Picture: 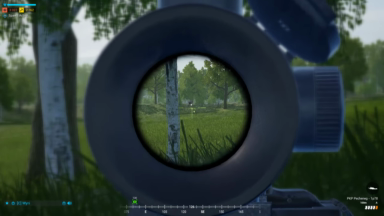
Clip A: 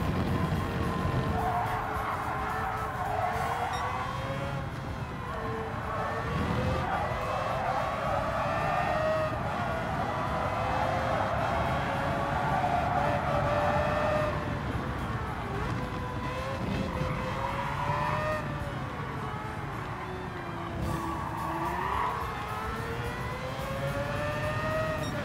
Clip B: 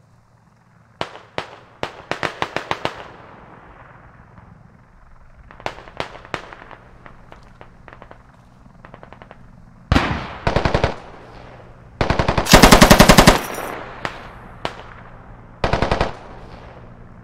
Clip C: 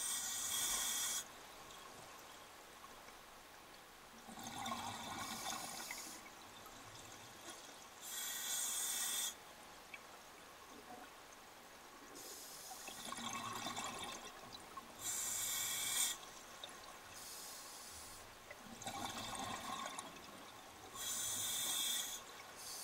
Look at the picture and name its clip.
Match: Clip B